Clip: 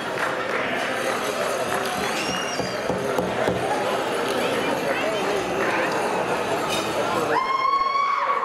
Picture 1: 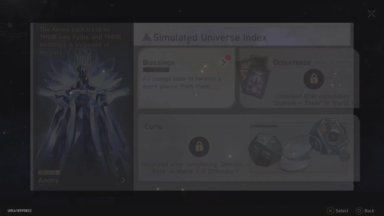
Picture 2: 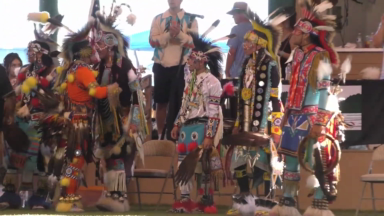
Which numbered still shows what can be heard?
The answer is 2